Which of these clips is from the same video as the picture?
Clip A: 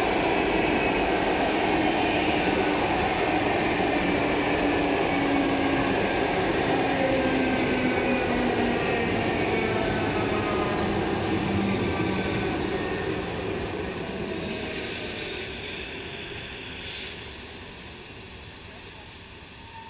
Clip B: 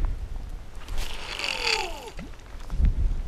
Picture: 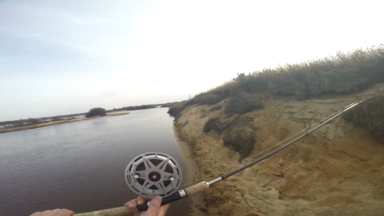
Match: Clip B